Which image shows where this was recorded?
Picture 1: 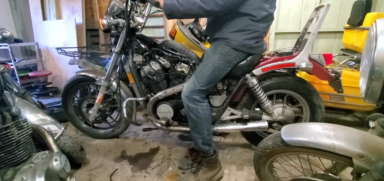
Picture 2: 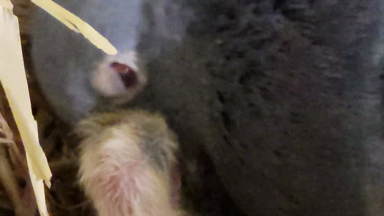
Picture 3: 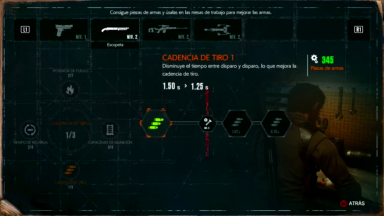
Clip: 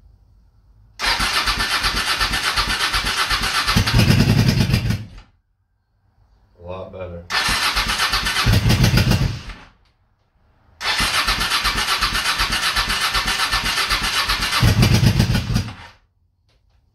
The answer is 1